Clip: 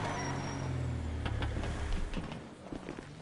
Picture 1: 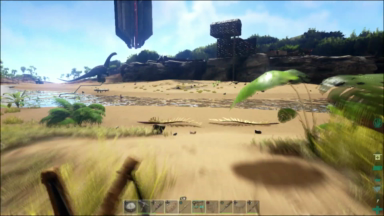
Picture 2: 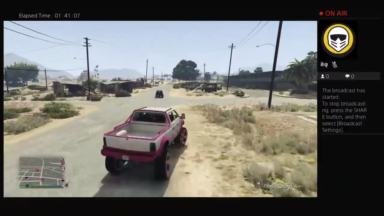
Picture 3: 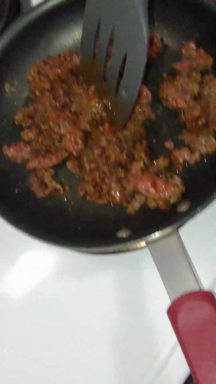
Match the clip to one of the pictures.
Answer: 2